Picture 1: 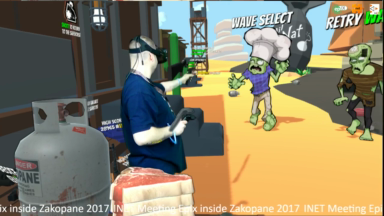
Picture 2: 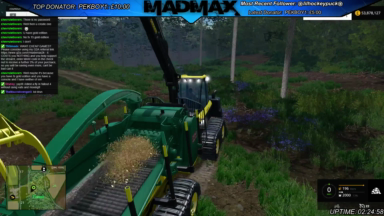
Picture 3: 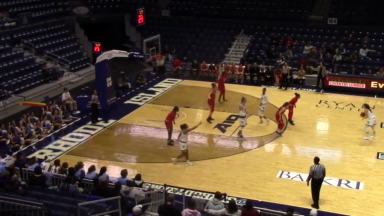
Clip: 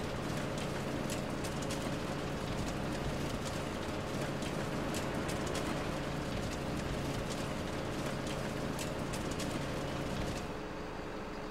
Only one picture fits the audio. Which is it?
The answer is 2